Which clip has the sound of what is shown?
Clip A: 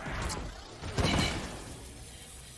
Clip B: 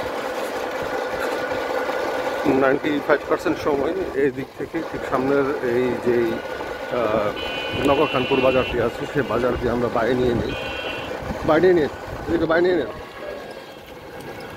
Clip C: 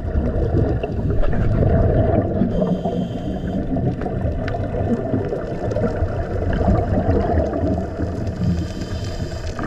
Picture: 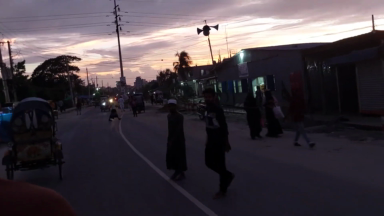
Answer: B